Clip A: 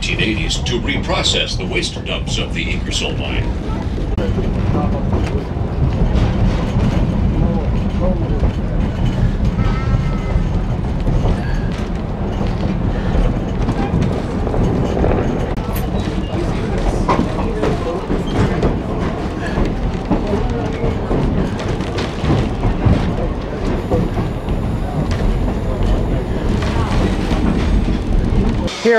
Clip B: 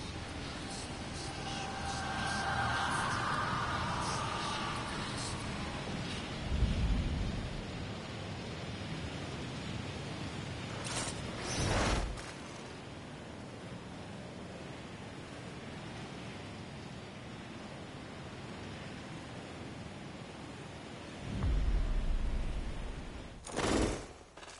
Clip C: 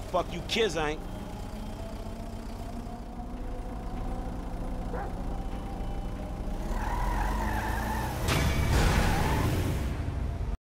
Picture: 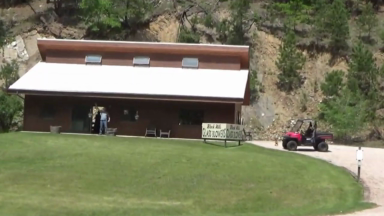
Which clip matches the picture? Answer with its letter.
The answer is A